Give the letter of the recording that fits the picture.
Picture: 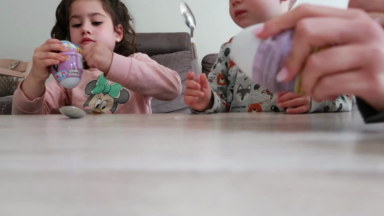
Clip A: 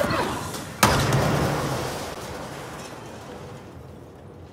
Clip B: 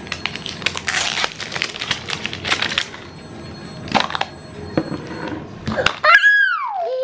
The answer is B